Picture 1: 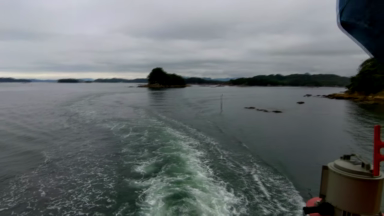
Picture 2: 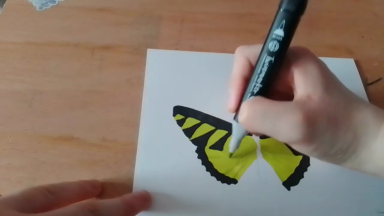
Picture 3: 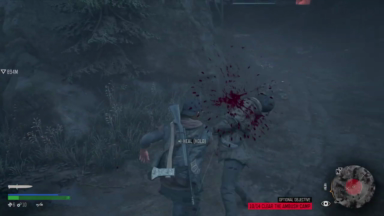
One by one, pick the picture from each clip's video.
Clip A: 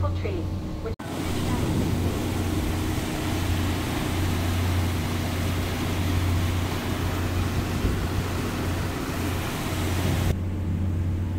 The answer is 1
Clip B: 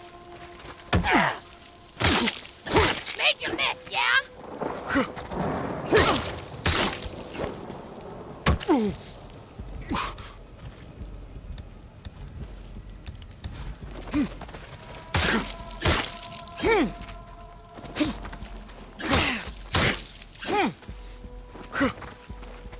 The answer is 3